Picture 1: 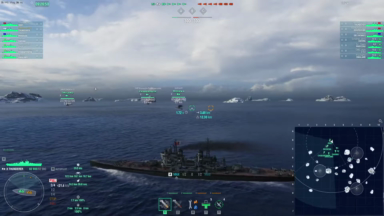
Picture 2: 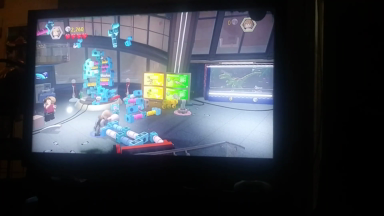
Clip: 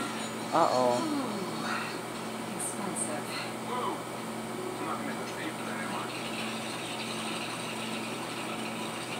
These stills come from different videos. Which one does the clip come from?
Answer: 2